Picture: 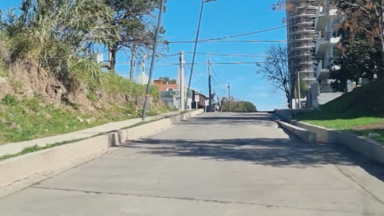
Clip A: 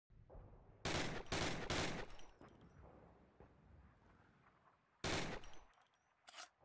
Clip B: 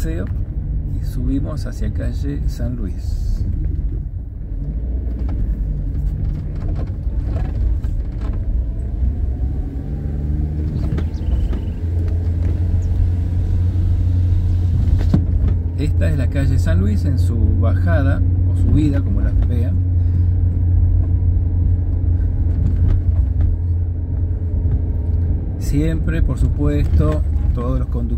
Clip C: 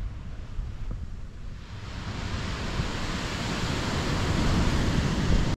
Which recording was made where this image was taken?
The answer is B